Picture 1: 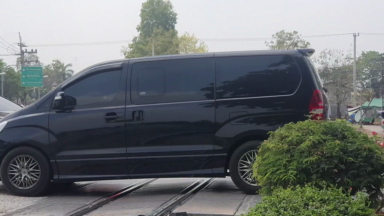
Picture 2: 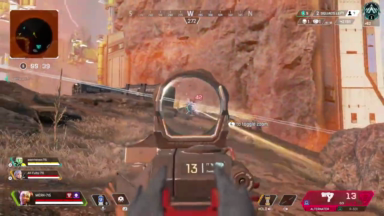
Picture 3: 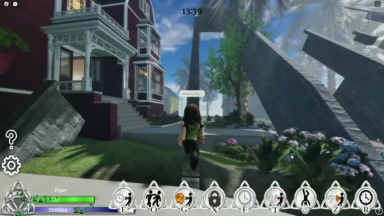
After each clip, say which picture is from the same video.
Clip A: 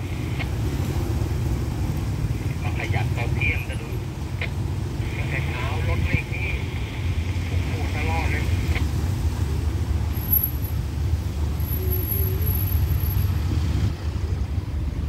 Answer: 1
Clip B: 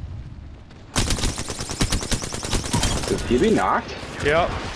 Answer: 2